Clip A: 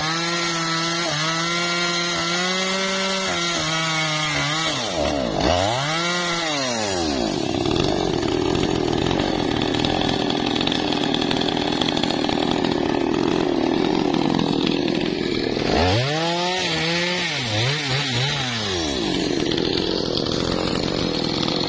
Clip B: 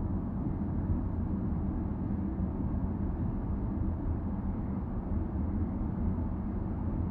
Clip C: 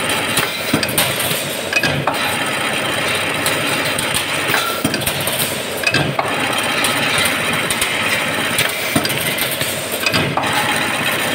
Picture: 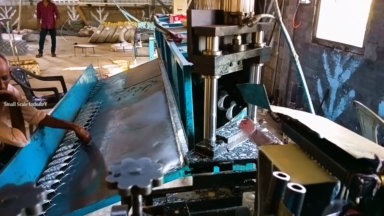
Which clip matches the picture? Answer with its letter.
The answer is C